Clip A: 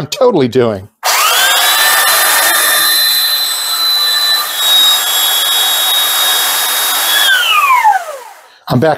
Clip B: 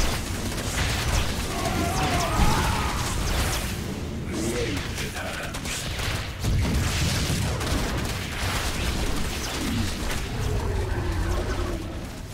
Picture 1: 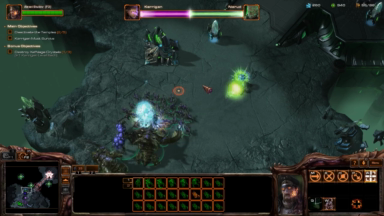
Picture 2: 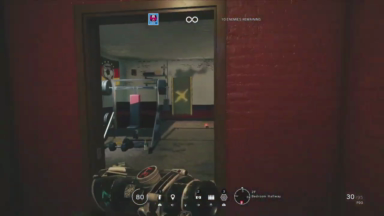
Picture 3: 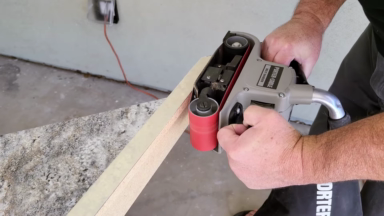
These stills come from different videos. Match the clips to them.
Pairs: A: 3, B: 1